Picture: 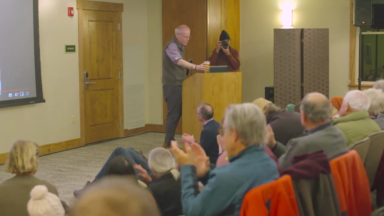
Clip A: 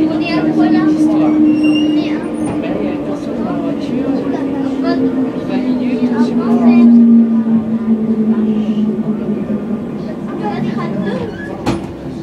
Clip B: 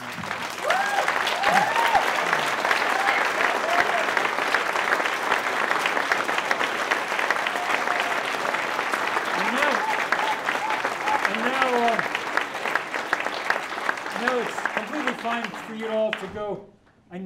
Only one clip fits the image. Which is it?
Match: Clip B